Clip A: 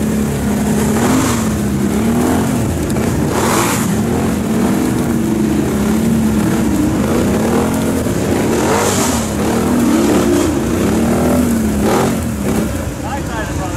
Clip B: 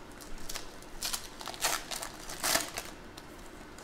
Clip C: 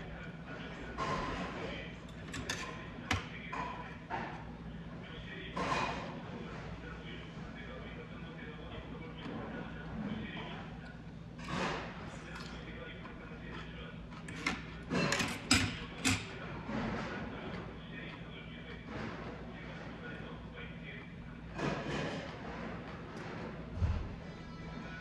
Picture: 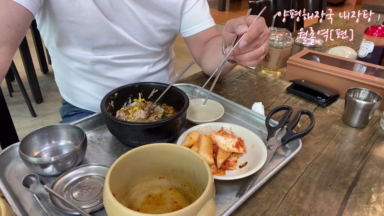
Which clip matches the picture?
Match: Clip C